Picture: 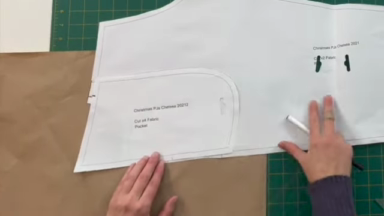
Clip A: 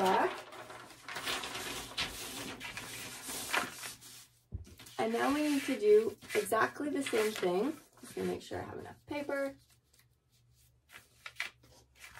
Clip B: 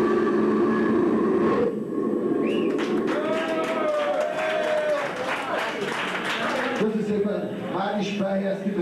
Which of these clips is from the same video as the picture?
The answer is A